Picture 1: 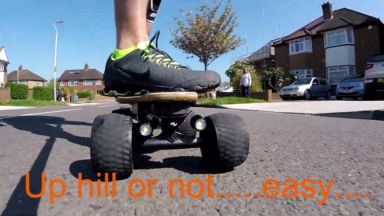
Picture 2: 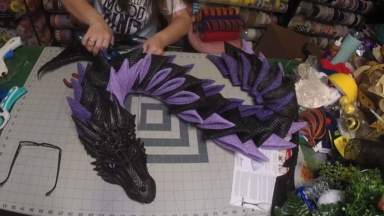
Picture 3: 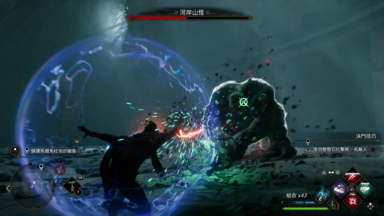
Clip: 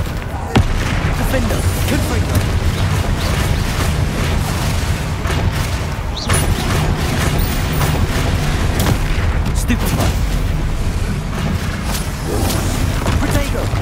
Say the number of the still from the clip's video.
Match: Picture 3